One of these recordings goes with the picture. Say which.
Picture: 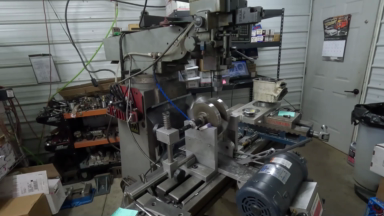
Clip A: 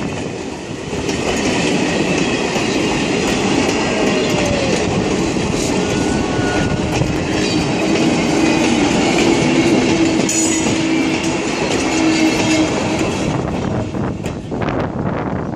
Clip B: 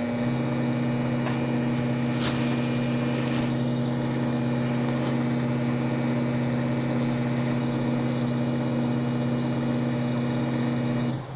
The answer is B